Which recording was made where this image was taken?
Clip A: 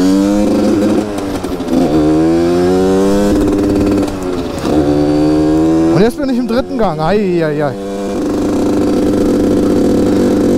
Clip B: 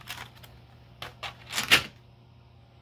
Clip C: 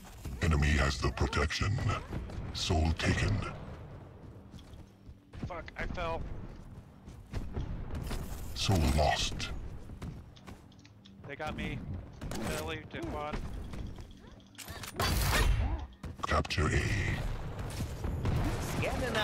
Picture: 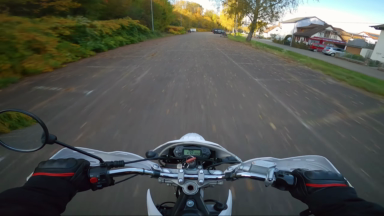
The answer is A